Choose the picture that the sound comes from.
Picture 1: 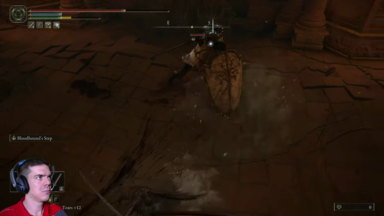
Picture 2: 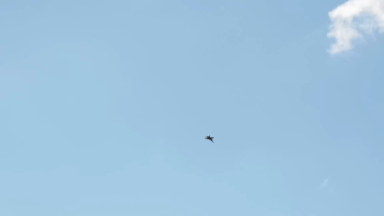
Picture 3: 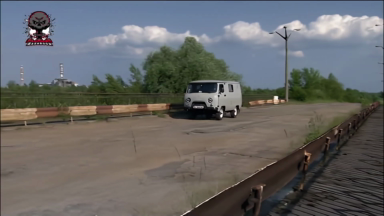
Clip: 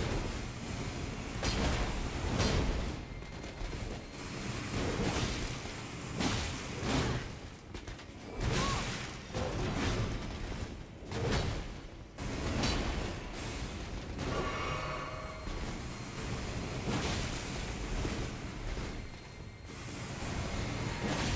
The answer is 1